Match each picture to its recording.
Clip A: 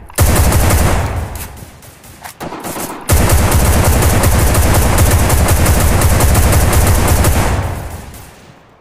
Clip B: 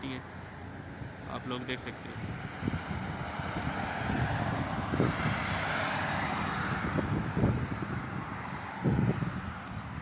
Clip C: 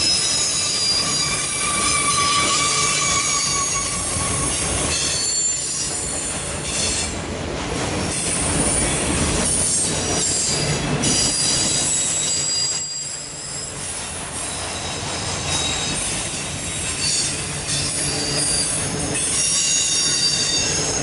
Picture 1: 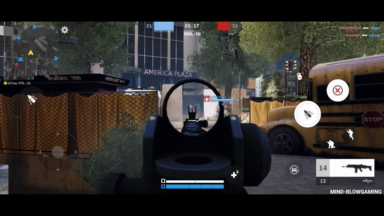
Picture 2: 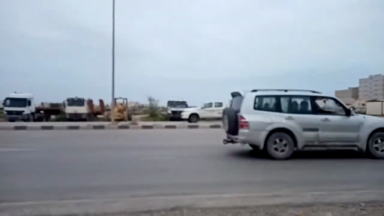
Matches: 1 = A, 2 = B